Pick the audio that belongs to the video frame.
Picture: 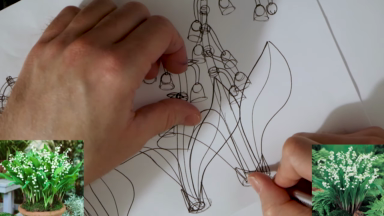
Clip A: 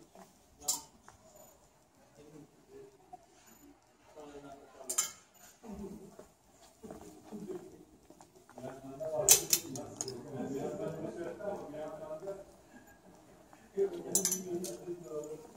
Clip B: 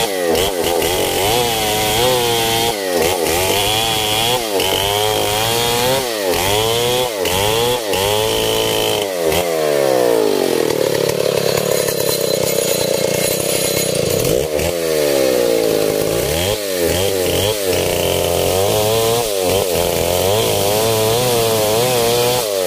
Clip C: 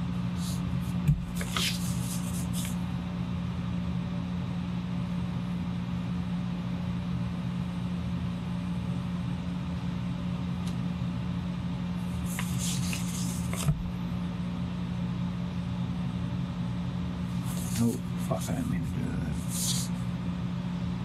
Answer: C